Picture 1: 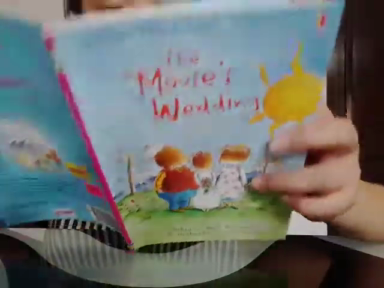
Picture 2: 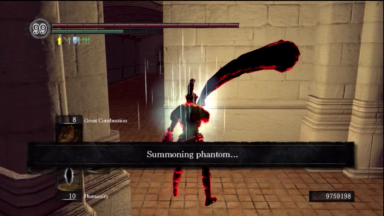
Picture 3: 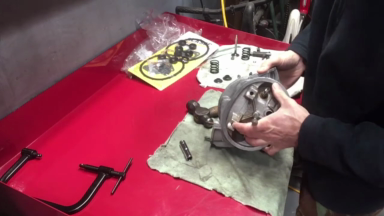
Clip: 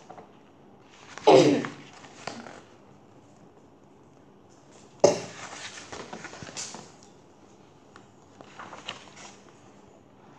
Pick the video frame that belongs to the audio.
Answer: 1